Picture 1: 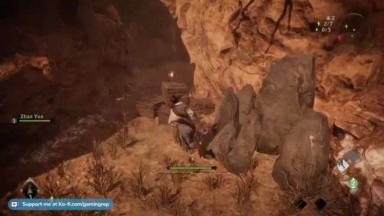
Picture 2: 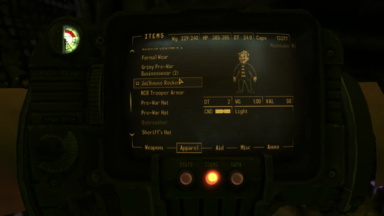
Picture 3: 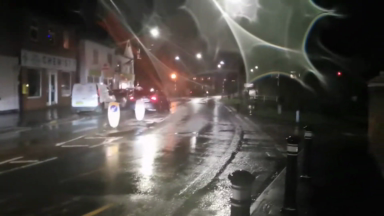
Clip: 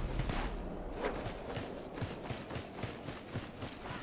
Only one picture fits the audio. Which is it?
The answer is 1